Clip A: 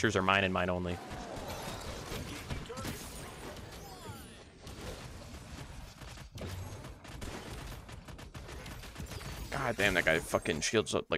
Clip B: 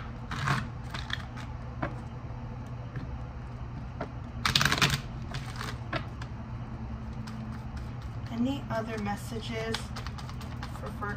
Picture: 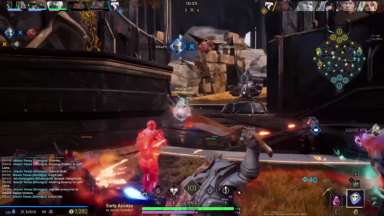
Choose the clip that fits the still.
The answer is A